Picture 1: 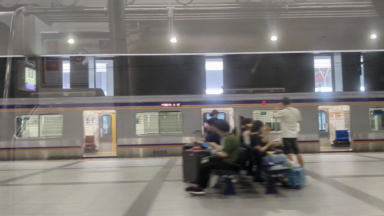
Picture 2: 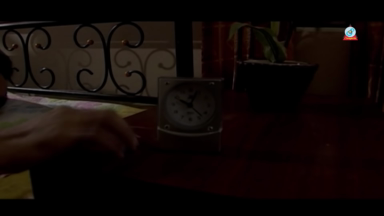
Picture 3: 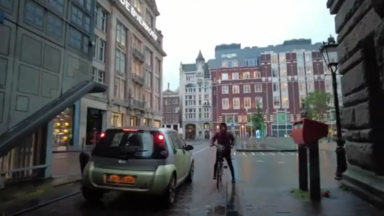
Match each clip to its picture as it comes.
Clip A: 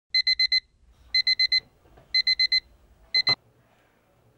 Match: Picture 2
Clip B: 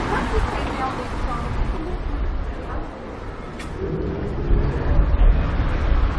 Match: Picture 3